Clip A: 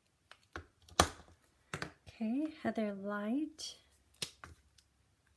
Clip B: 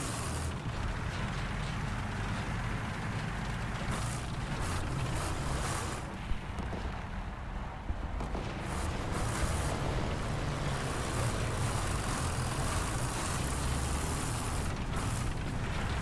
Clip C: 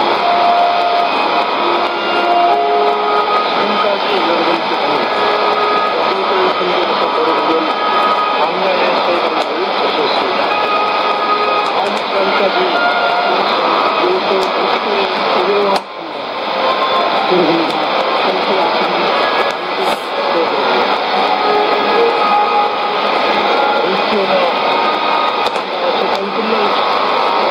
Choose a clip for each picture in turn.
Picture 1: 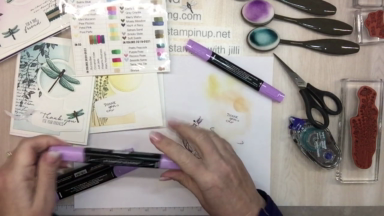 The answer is A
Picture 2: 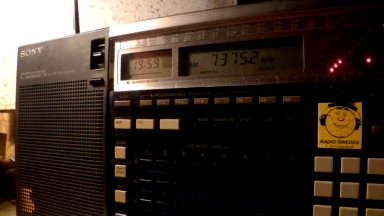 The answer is C